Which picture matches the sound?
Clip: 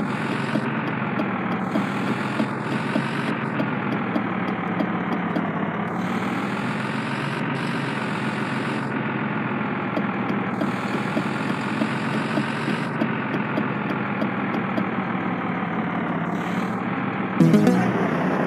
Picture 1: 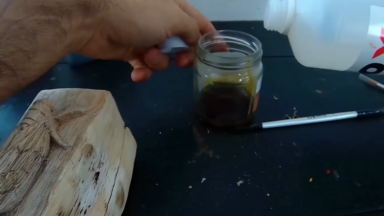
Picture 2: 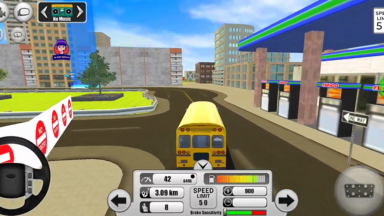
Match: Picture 2